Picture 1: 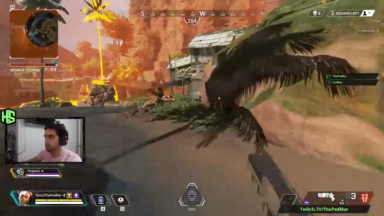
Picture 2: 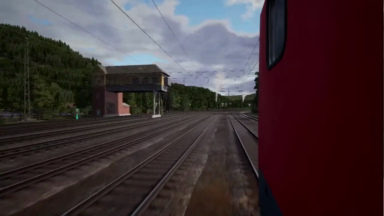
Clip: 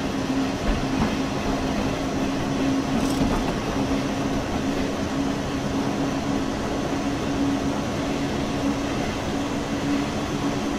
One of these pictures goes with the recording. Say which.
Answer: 2